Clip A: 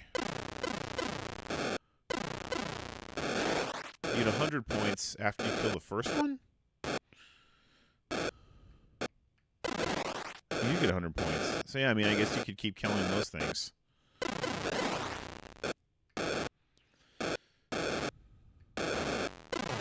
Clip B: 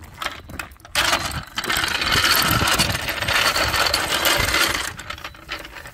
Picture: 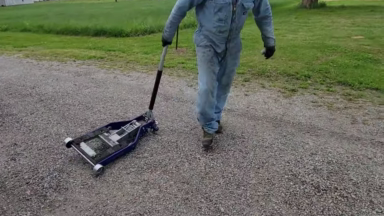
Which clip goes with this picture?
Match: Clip B